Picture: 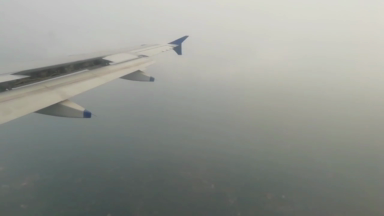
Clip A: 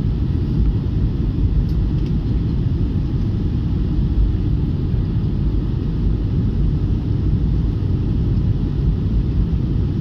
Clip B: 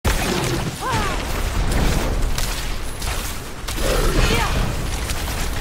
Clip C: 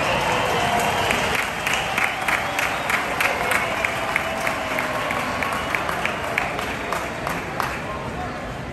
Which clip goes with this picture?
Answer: A